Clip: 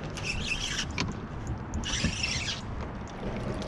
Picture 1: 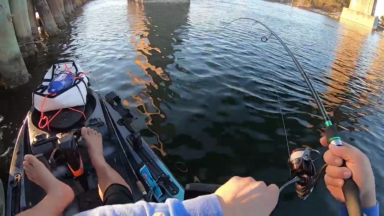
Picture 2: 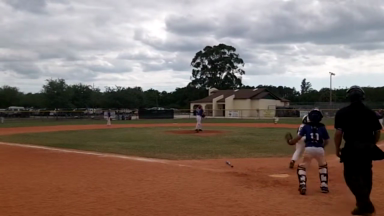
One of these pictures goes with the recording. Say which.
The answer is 1